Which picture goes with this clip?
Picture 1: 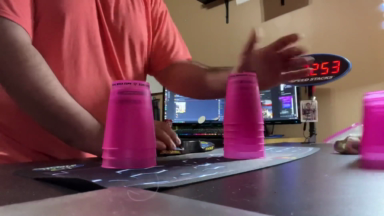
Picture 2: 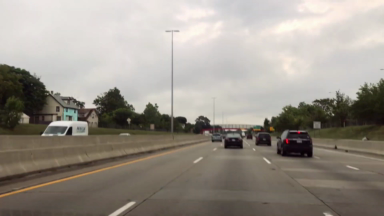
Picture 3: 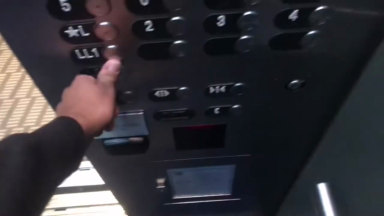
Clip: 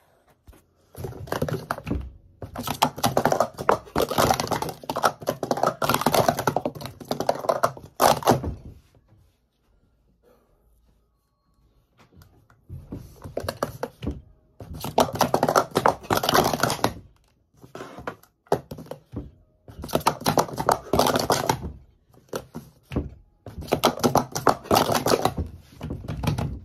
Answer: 1